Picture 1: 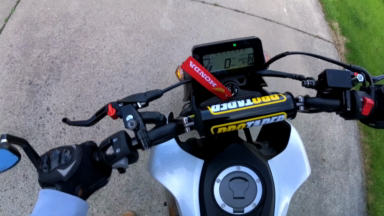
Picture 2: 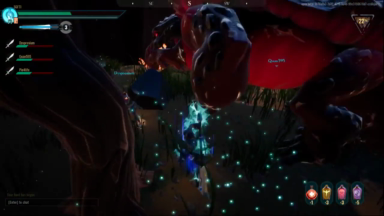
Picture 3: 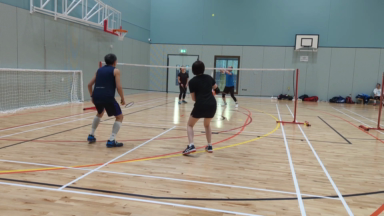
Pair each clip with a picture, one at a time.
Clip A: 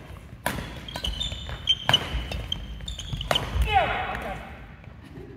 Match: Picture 3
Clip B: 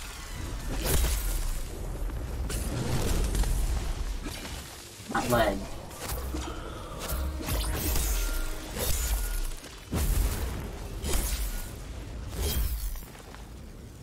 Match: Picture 2